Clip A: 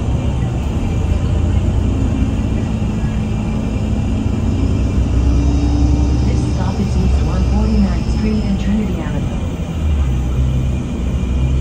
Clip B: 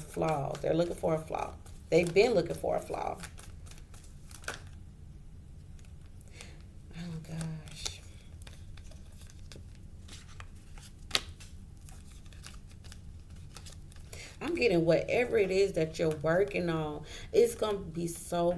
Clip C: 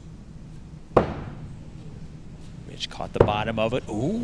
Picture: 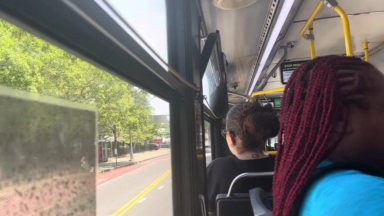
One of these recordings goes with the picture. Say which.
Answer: A